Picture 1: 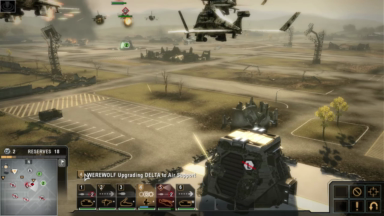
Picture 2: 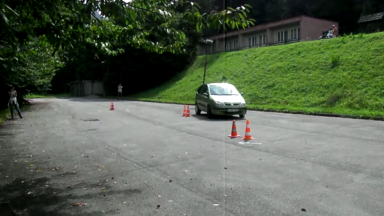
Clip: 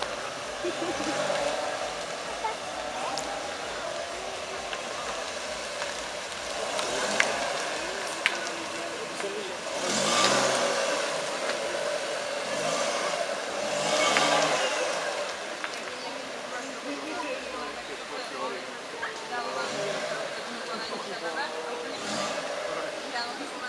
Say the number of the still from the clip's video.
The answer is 2